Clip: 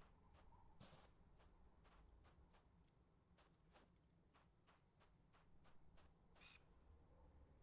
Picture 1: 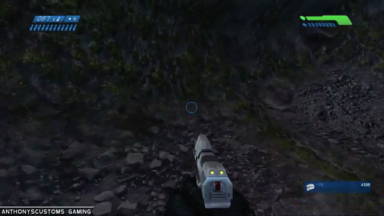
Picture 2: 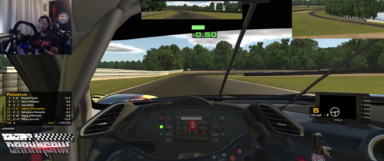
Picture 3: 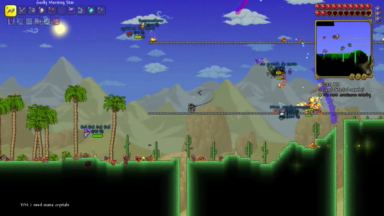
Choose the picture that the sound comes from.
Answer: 1